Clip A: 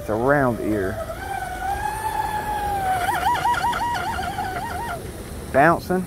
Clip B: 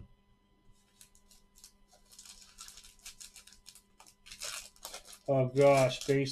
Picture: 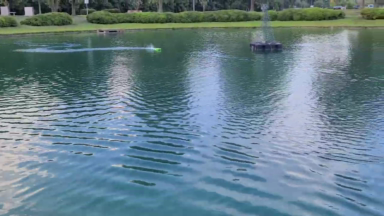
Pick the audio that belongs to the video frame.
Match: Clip A